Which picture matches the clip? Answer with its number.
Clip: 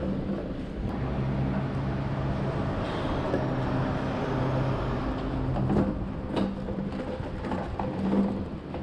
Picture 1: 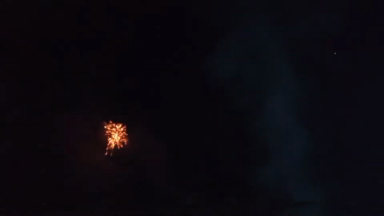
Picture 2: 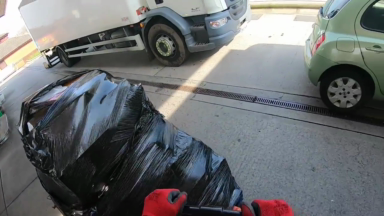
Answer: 2